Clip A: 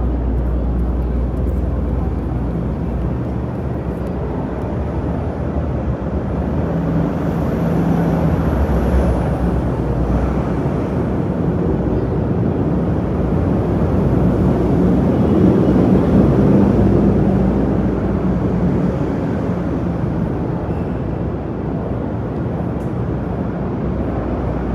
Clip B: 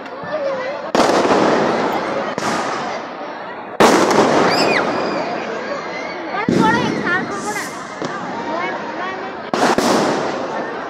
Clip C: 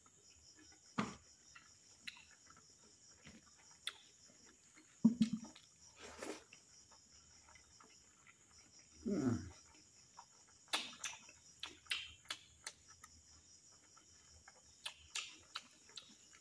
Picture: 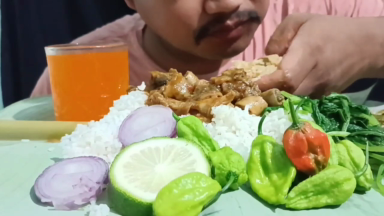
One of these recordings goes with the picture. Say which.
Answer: C